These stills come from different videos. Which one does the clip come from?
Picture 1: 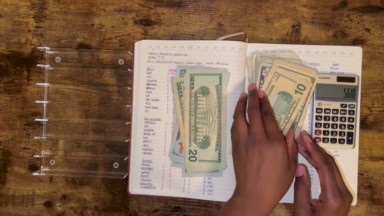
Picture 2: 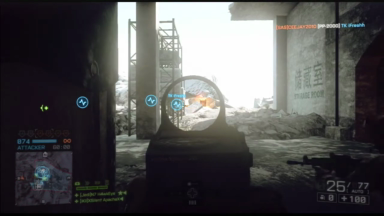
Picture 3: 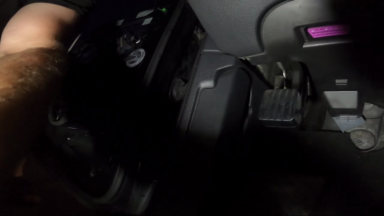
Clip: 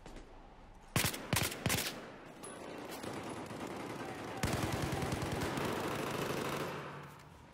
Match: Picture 2